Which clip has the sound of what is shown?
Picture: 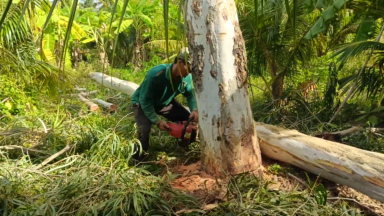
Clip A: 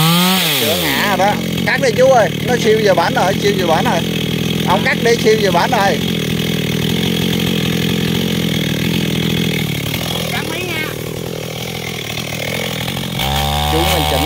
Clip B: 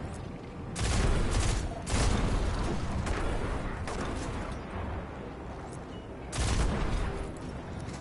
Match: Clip A